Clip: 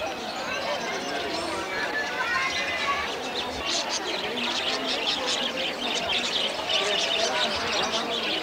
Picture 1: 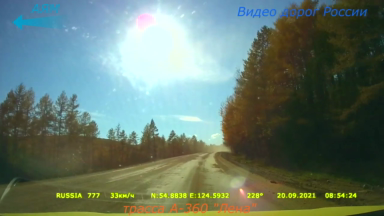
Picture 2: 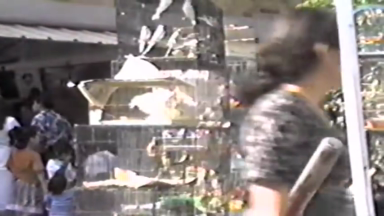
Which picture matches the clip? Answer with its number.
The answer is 2